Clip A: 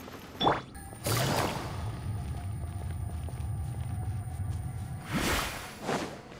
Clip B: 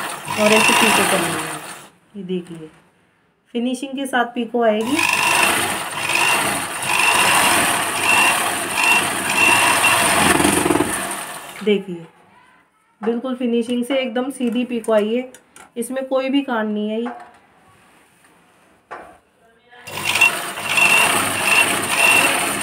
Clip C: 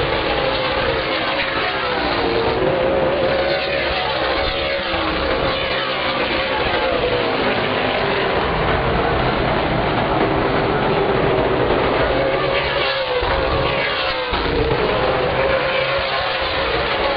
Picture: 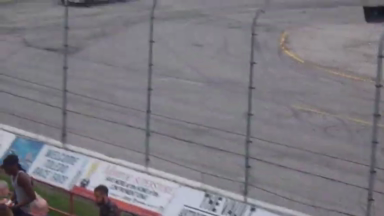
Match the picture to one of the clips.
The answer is C